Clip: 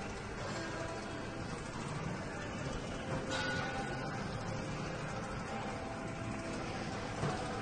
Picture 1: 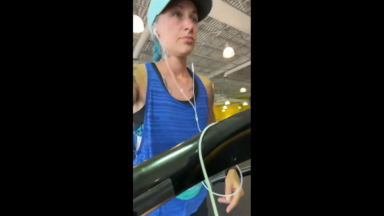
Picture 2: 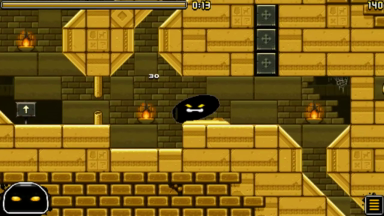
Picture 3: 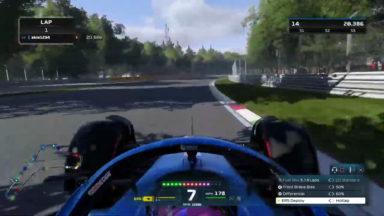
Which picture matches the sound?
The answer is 1